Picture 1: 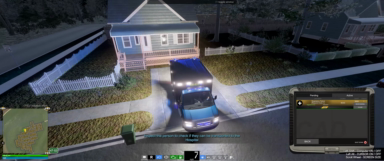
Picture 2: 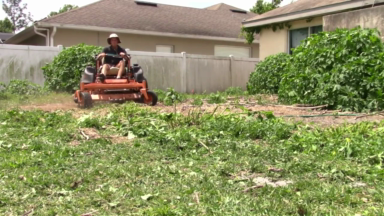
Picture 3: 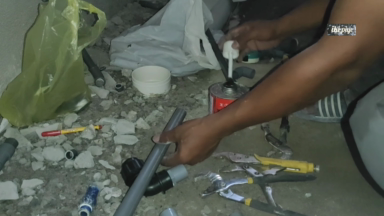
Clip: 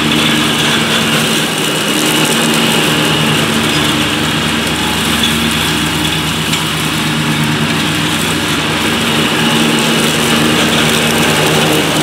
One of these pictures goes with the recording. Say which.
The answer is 2